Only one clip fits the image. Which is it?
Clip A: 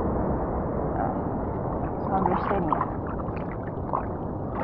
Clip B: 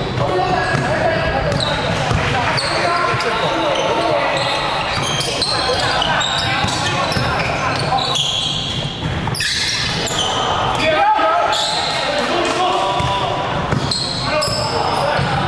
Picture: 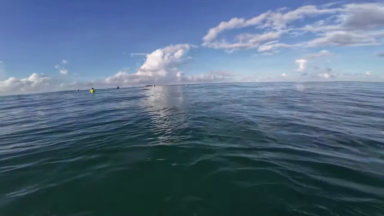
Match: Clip A